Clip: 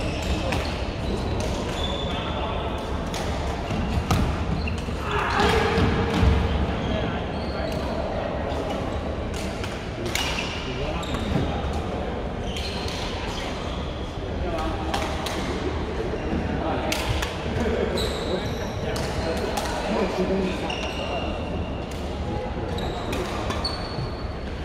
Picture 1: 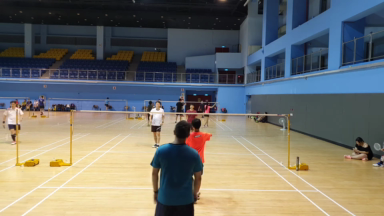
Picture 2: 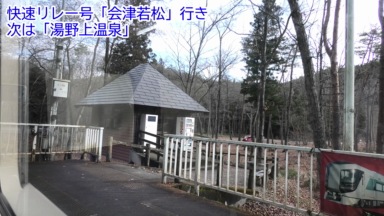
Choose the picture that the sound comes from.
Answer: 1